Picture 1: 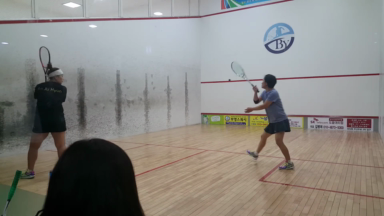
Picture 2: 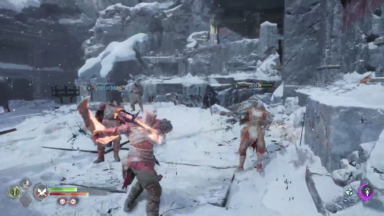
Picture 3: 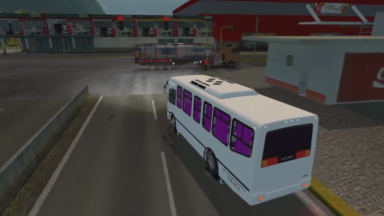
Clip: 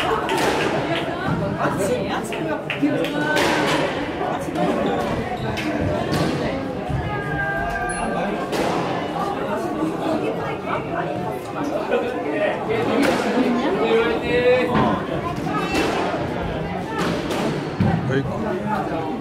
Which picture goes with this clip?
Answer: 1